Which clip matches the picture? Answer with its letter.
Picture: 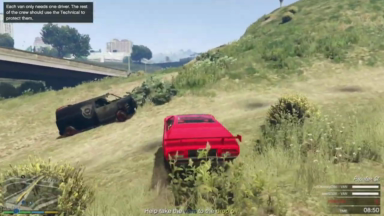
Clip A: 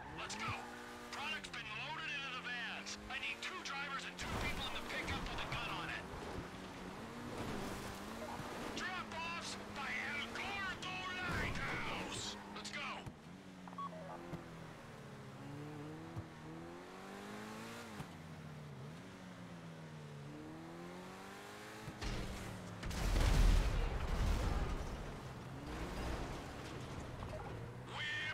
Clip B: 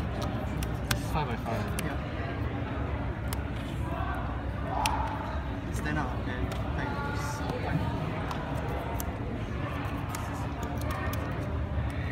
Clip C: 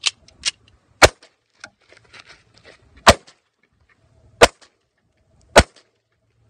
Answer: A